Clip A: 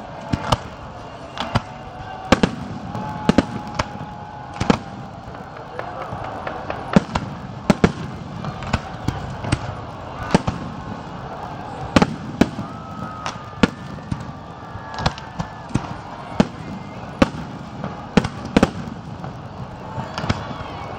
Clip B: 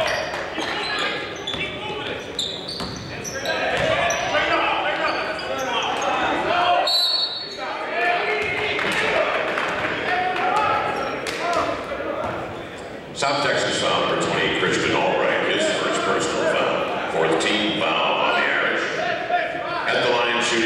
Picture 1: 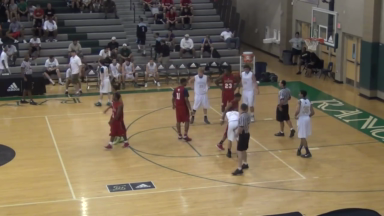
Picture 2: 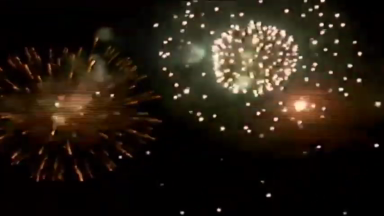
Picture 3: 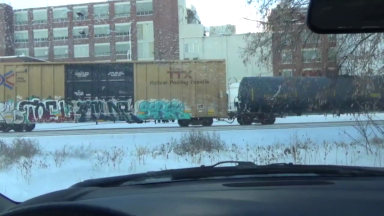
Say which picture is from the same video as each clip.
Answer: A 2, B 1